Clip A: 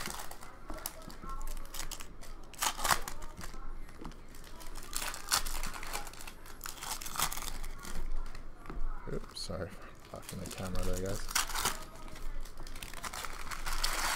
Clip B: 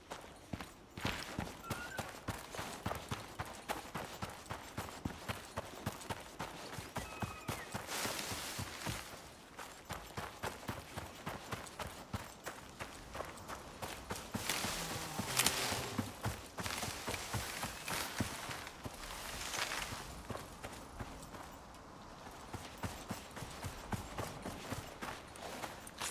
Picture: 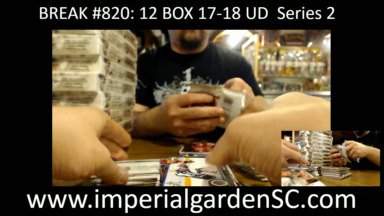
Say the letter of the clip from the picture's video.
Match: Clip A